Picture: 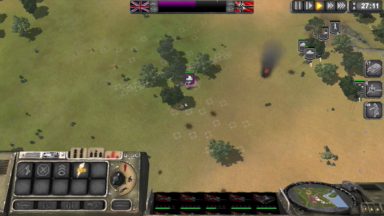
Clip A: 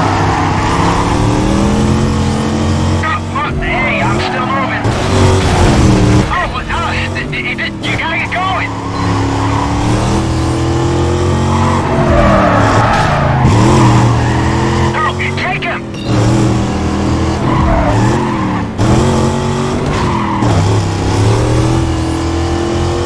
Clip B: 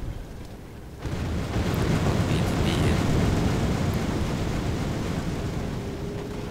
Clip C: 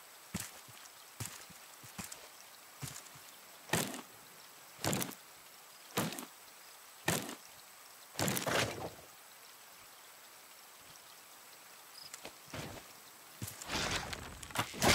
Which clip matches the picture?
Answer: B